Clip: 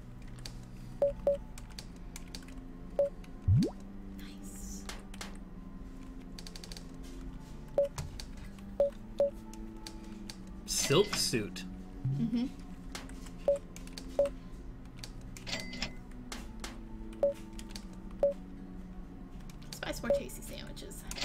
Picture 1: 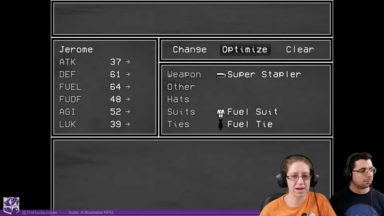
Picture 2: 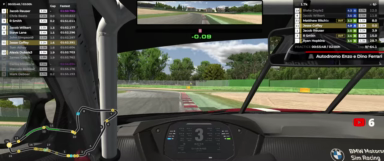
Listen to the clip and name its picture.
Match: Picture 1